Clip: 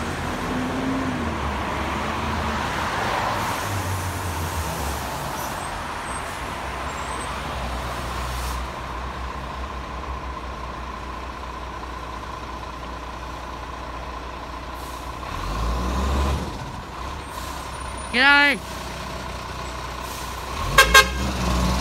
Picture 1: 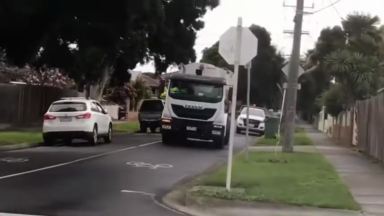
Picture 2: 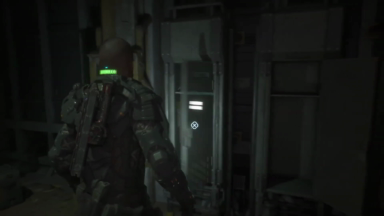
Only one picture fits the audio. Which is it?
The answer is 1